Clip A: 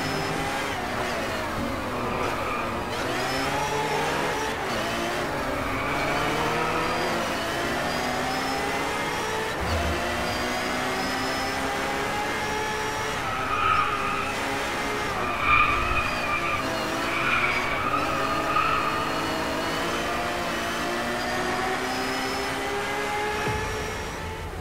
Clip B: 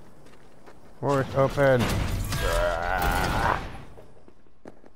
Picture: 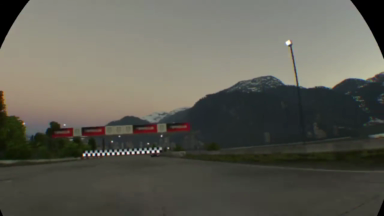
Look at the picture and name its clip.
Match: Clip A